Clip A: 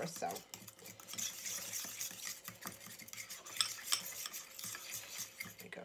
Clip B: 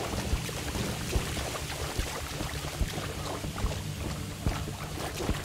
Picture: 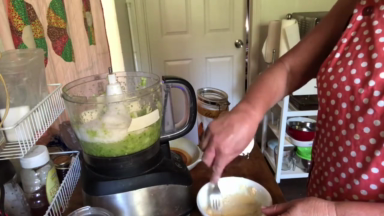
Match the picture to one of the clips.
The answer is A